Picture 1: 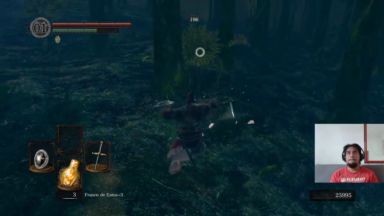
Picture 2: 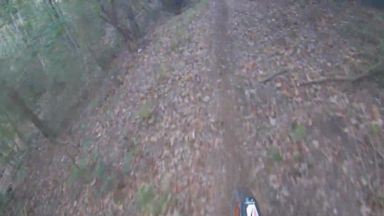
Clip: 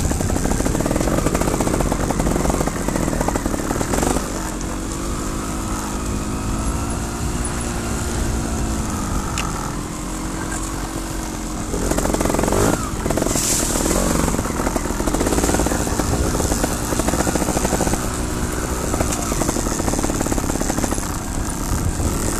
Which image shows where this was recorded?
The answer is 2